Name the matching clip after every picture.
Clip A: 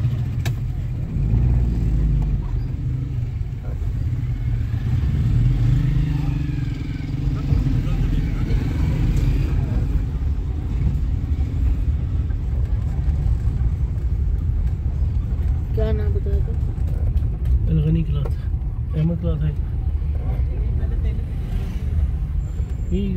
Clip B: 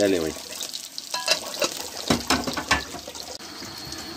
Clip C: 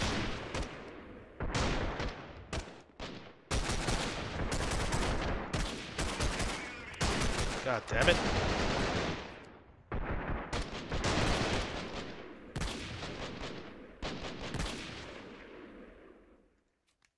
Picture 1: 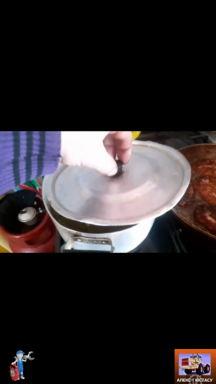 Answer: B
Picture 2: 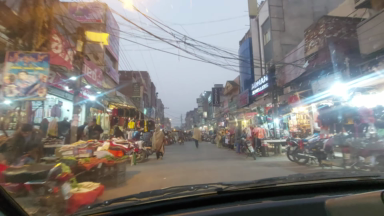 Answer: A